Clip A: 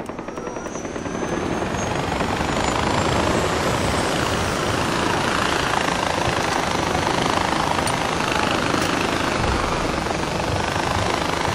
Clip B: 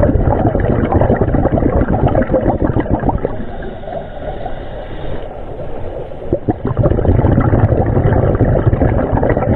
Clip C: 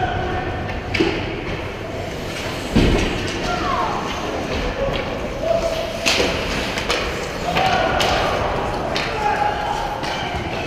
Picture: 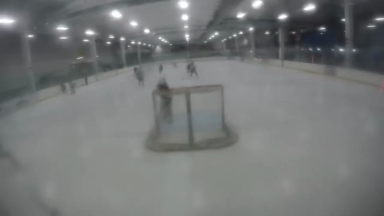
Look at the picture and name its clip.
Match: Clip C